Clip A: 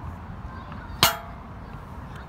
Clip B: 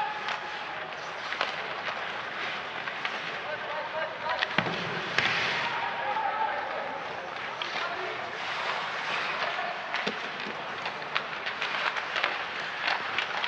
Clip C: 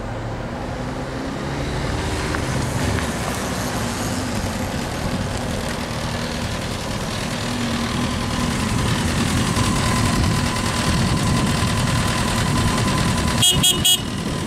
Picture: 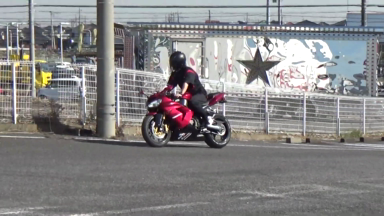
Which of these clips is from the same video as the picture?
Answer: C